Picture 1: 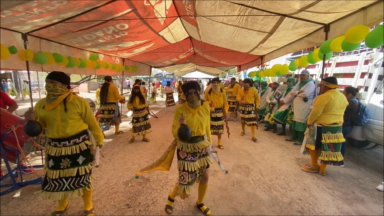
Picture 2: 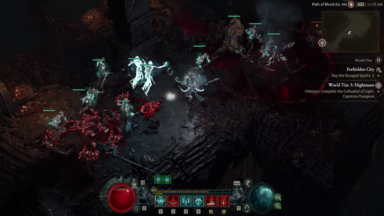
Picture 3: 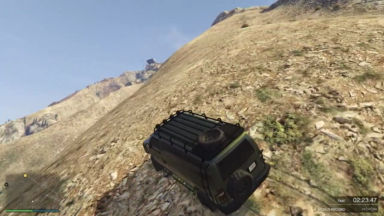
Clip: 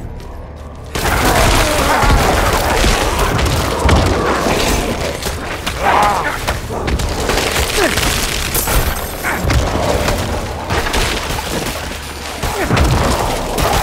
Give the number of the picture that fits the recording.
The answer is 2